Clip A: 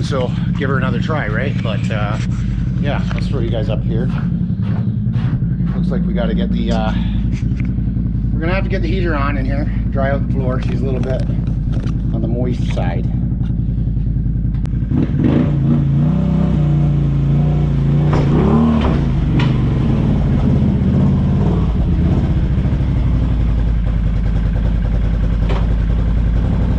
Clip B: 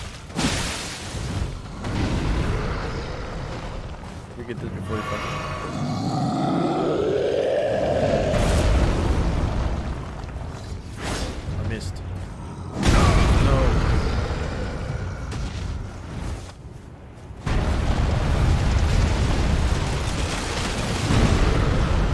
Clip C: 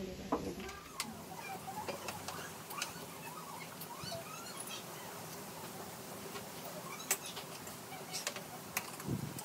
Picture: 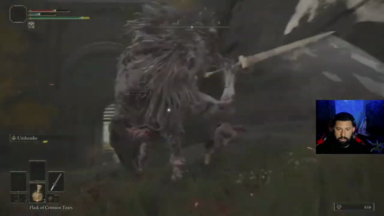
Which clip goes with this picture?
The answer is B